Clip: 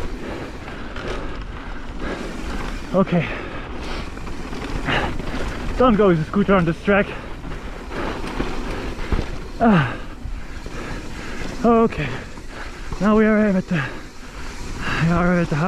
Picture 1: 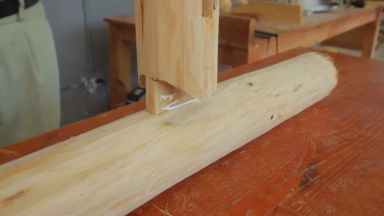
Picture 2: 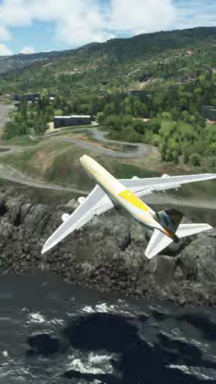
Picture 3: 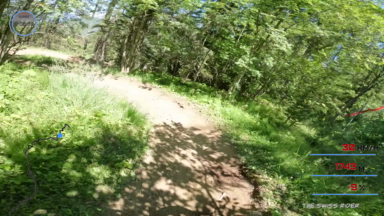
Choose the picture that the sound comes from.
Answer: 3